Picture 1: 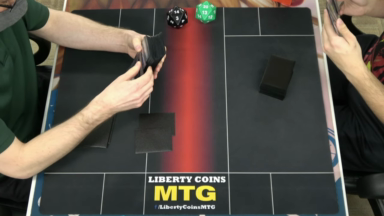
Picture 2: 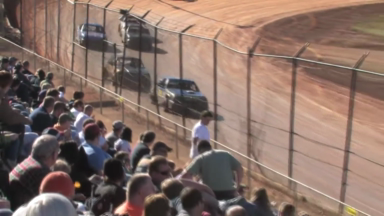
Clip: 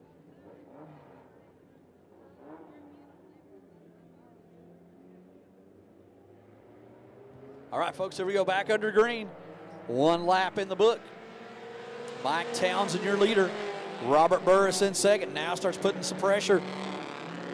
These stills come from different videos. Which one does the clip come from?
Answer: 2